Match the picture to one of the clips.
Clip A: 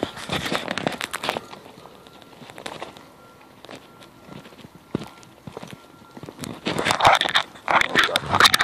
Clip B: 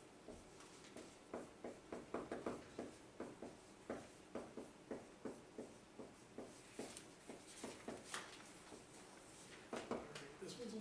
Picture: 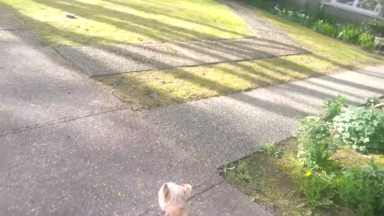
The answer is A